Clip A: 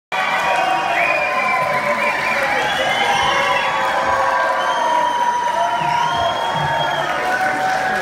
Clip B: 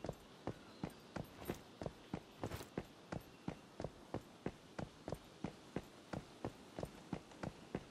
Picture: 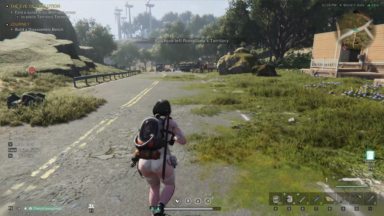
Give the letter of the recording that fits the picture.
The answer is B